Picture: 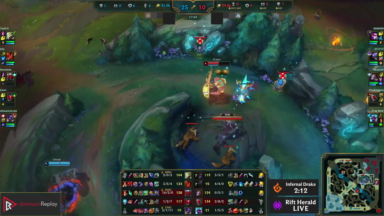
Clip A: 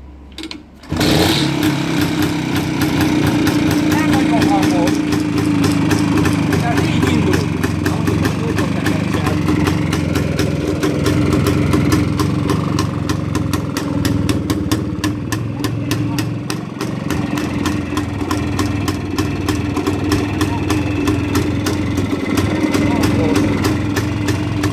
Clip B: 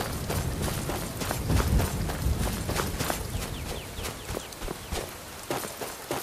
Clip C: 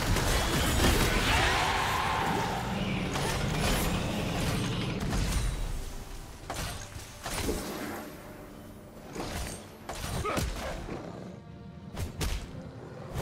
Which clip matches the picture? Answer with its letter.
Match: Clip C